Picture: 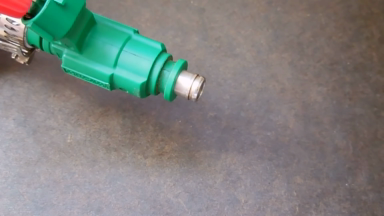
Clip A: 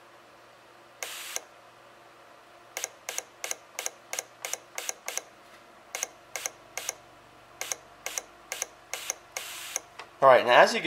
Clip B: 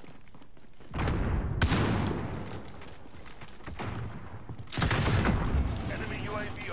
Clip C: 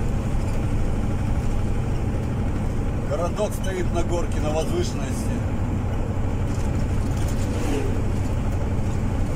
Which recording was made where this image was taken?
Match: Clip A